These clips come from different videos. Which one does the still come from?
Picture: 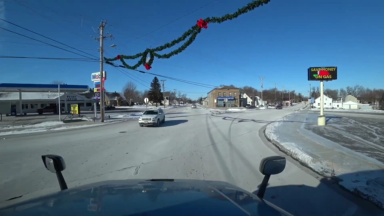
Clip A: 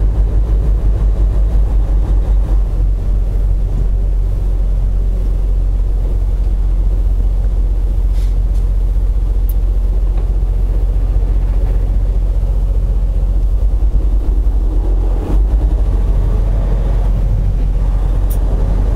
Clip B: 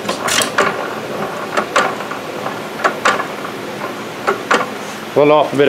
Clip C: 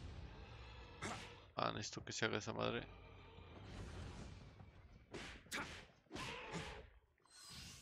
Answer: A